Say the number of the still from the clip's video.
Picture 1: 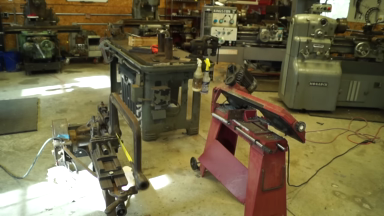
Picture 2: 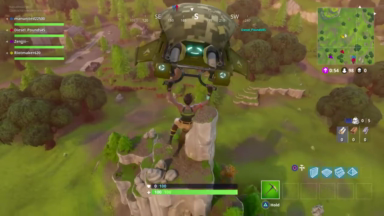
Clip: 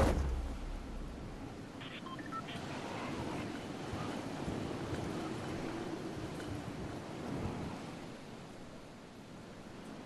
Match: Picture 2